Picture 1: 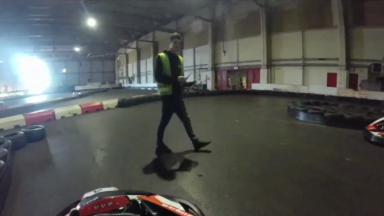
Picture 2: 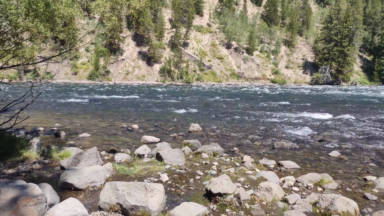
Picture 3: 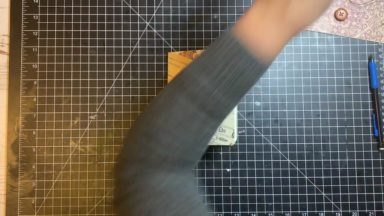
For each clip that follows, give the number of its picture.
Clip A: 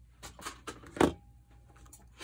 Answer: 3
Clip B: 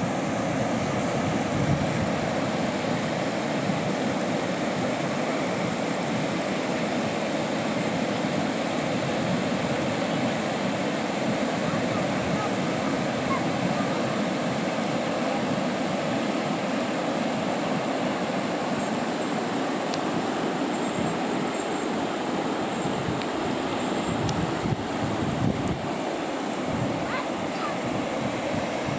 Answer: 2